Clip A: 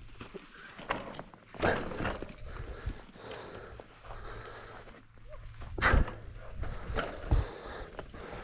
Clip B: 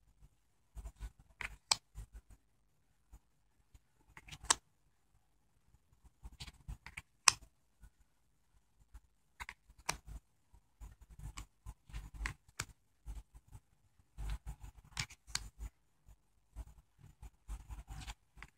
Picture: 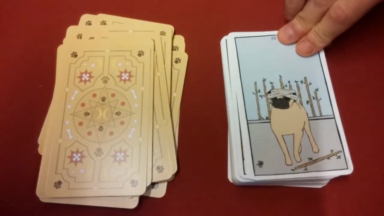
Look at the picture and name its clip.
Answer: B